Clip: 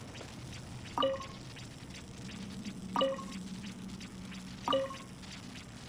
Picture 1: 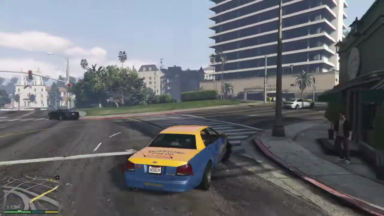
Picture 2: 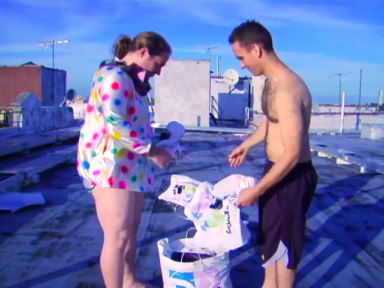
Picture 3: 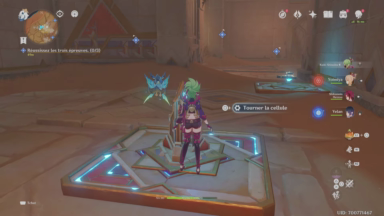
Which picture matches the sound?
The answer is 3